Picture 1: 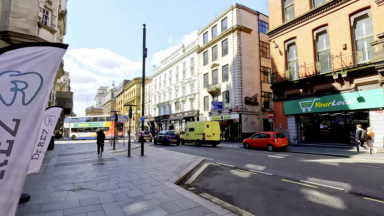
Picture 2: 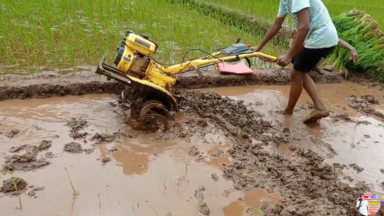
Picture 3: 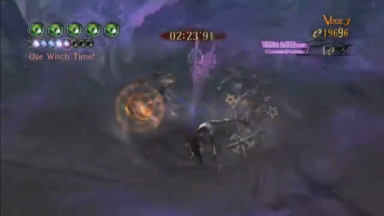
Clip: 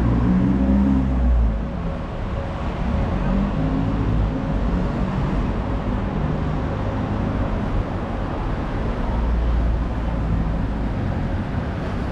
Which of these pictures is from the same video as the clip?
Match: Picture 1